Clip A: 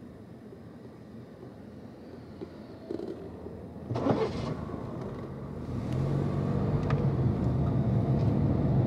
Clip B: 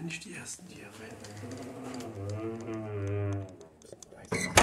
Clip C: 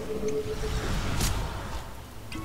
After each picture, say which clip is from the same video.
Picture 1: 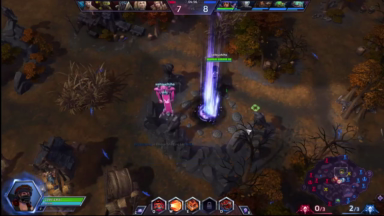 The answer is C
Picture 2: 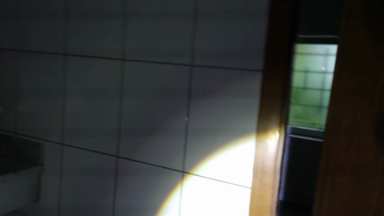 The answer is B